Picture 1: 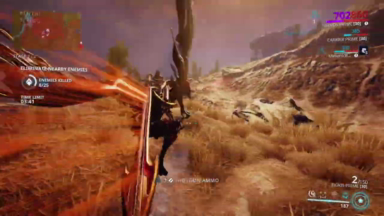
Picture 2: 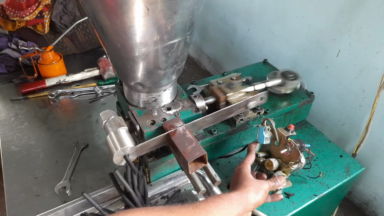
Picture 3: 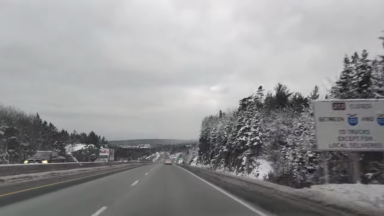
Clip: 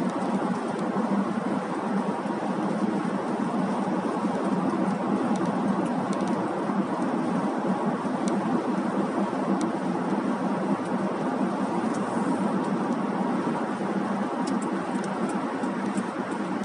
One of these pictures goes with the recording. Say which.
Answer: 3